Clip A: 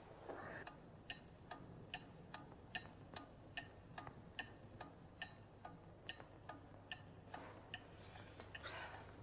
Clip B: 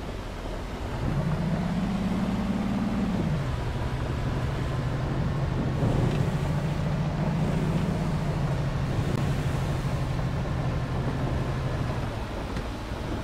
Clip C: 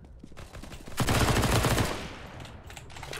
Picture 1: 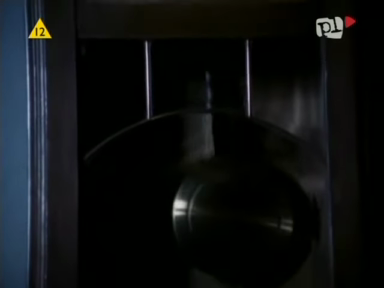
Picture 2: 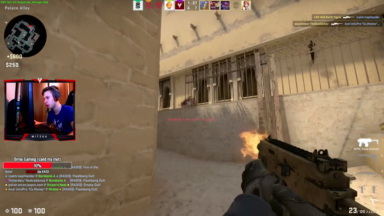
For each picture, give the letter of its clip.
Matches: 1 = A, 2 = C